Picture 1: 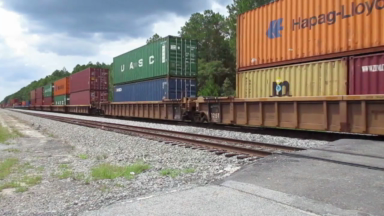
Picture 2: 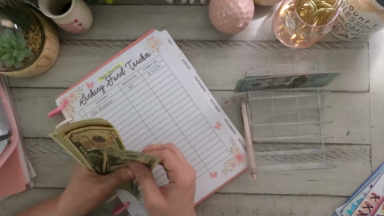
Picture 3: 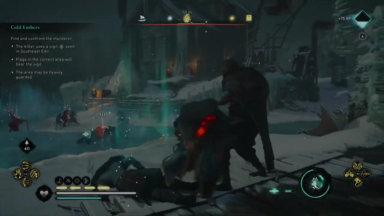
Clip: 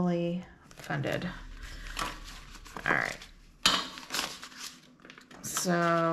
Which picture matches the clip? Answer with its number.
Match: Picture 2